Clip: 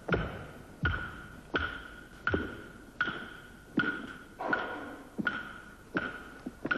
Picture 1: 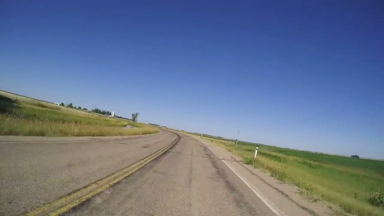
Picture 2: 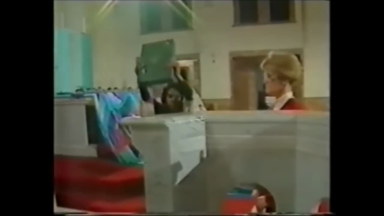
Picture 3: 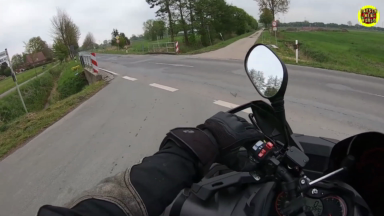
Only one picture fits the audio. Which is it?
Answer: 2